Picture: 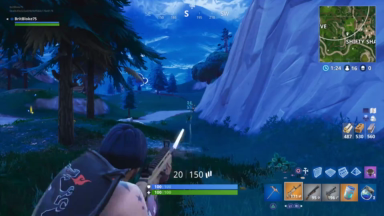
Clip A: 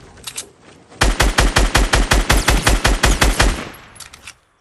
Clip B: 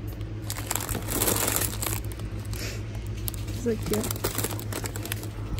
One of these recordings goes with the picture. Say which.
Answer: A